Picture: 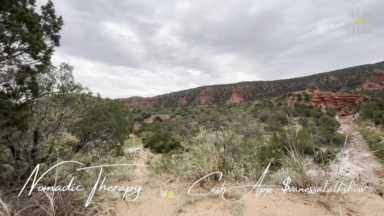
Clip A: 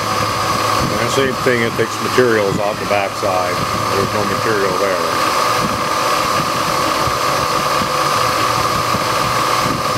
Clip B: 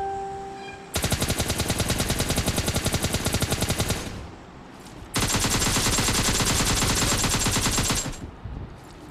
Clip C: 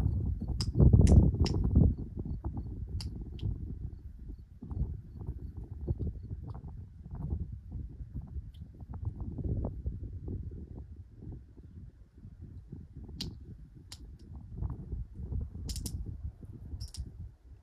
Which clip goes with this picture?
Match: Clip C